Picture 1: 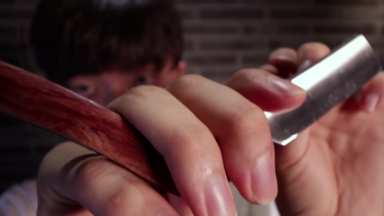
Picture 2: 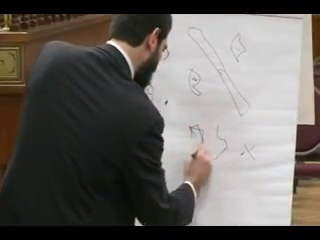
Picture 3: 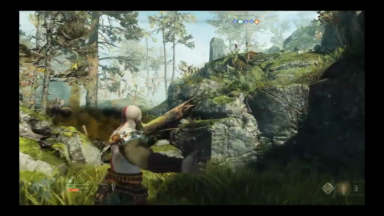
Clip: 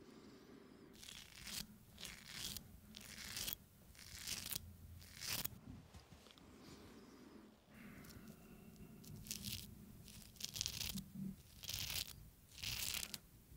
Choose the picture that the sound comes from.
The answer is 1